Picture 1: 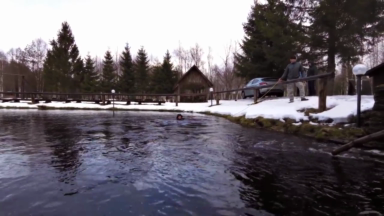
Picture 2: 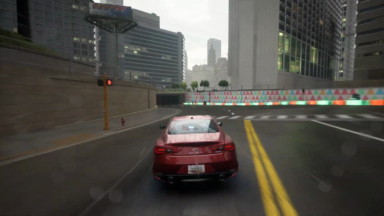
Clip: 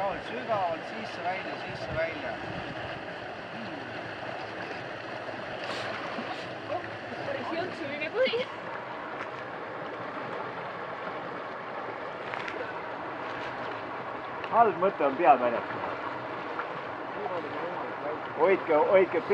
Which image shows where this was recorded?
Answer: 1